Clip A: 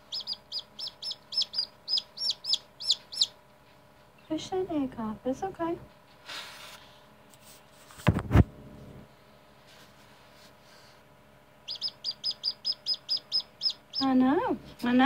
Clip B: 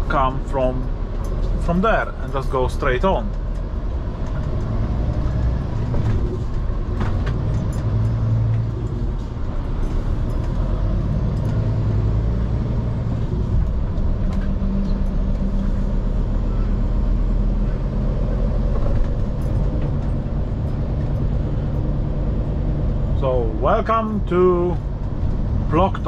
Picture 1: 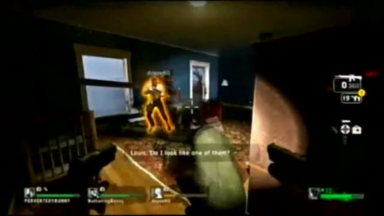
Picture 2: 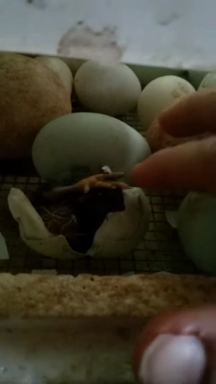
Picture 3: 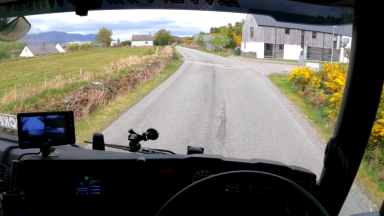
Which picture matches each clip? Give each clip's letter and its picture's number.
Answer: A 2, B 3